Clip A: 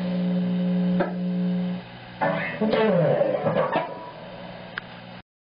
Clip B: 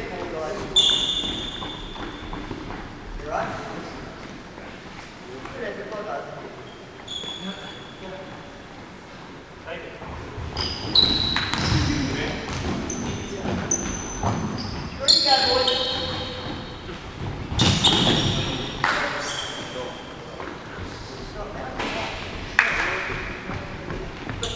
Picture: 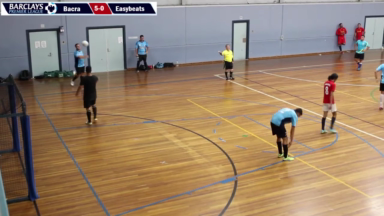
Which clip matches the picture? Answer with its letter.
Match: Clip B